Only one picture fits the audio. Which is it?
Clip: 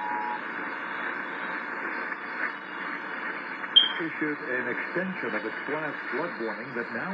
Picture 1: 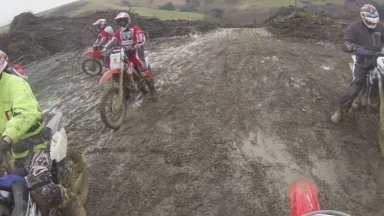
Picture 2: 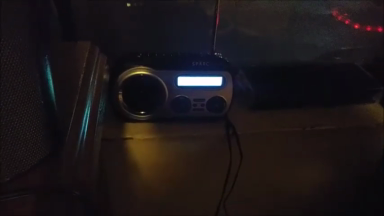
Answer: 2